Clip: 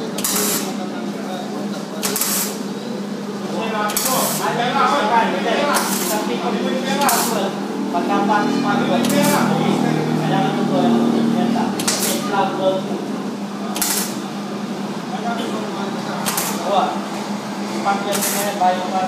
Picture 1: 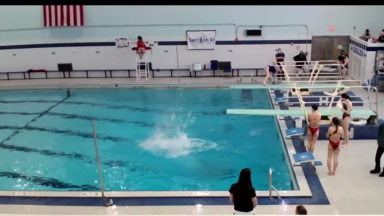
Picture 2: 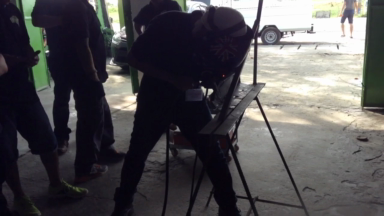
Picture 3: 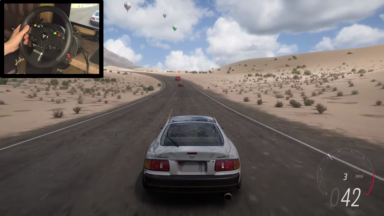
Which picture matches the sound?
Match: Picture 2